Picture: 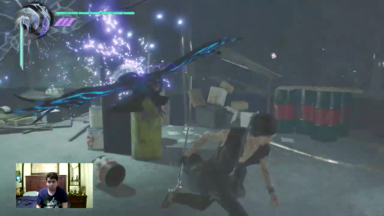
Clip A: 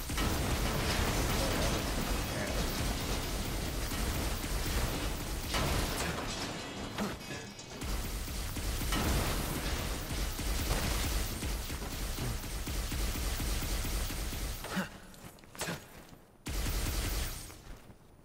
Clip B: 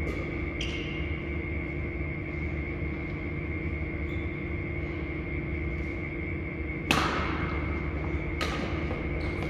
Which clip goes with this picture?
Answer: A